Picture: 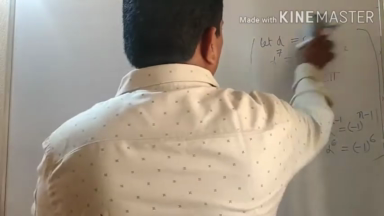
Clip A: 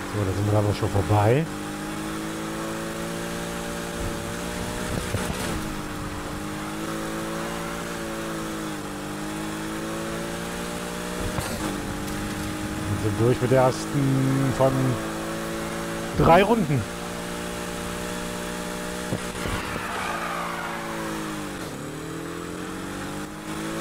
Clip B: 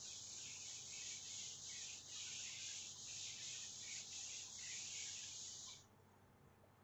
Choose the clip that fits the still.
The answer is B